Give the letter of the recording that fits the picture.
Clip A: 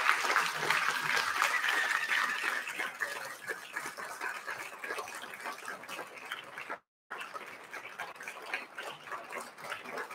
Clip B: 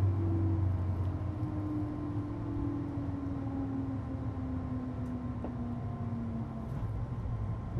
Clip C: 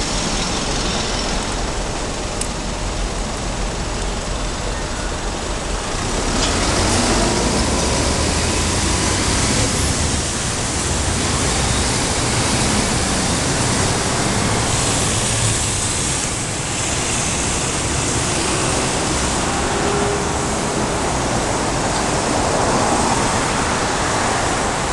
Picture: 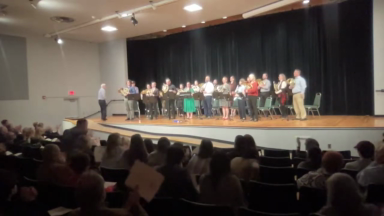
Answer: A